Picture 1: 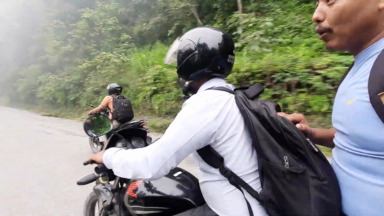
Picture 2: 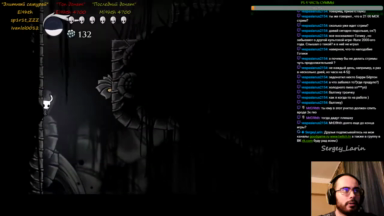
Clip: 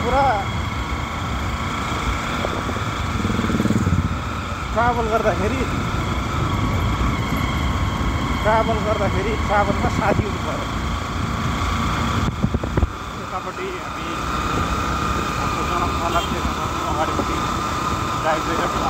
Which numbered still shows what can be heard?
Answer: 1